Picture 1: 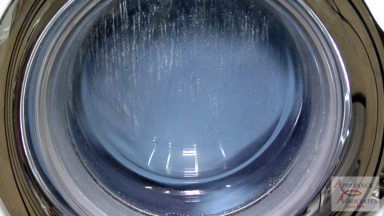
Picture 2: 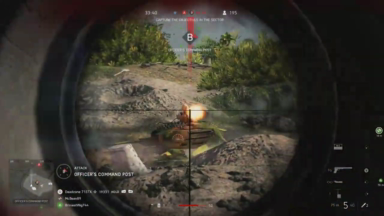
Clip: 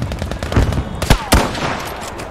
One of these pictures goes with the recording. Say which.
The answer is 2